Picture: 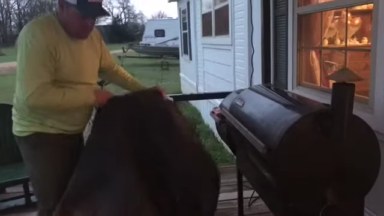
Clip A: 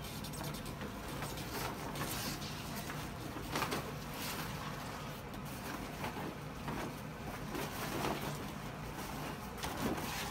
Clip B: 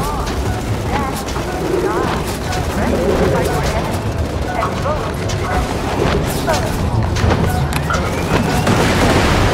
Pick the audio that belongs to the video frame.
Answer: A